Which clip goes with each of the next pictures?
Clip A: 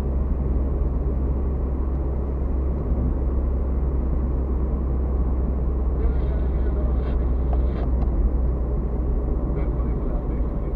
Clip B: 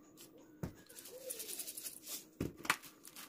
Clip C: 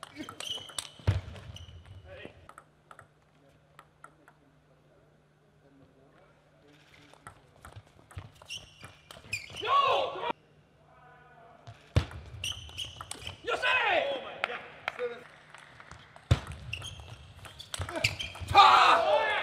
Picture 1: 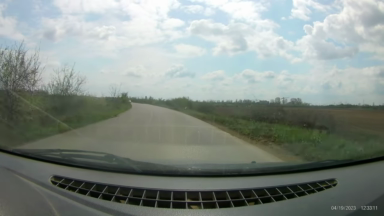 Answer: A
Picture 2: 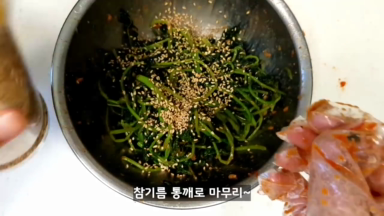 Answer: B